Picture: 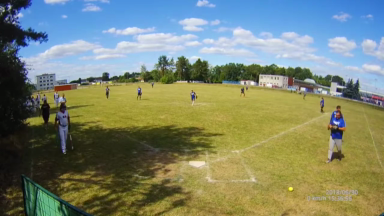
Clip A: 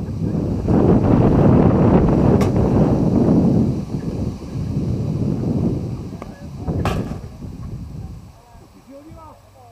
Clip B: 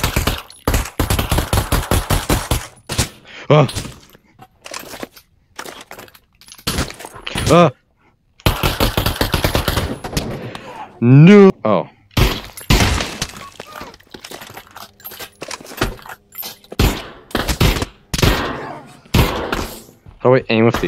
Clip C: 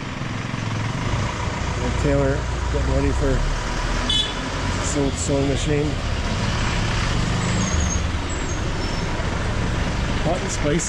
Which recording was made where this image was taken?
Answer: A